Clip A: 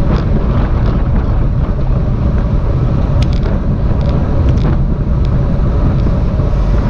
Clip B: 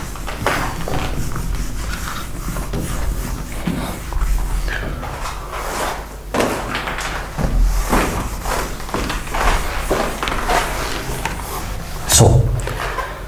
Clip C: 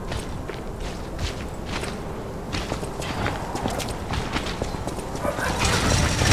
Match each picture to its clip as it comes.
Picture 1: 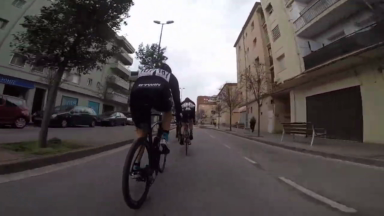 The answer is A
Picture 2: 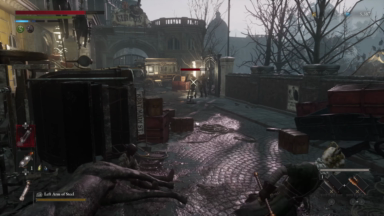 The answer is C